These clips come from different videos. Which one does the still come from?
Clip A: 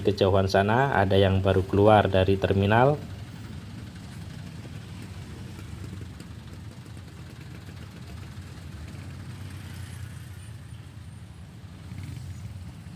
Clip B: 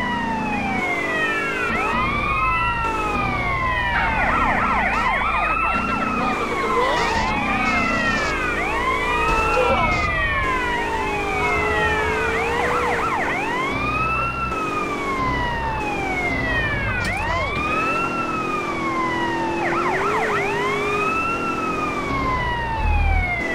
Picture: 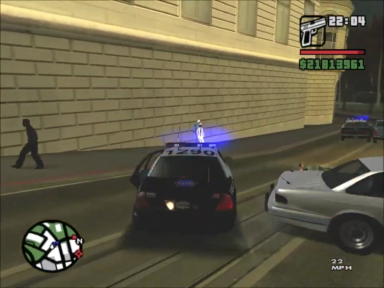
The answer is B